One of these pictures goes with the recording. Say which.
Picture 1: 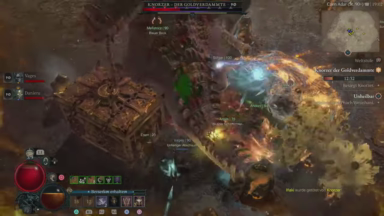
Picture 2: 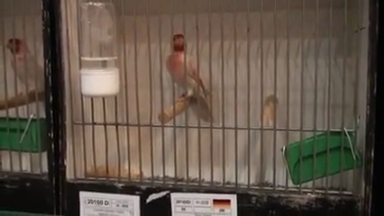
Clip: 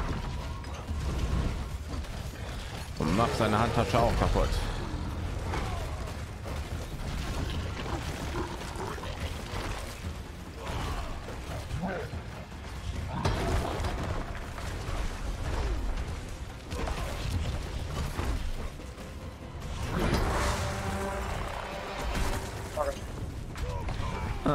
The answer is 1